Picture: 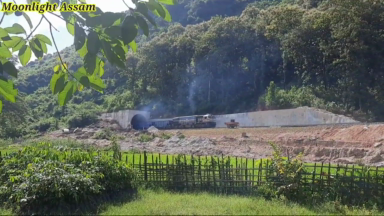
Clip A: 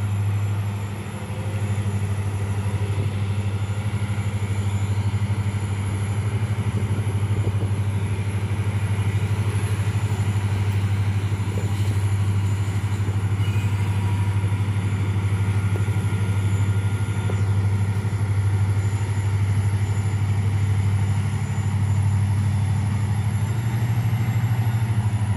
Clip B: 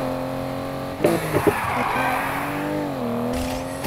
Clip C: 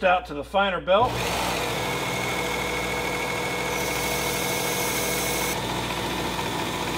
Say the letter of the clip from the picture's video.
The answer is A